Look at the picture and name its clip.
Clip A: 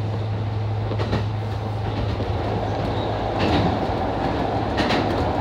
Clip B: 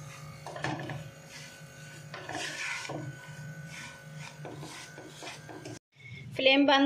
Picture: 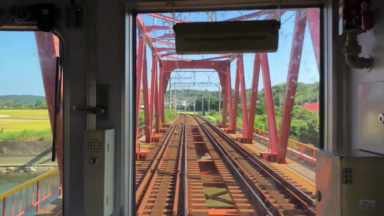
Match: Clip A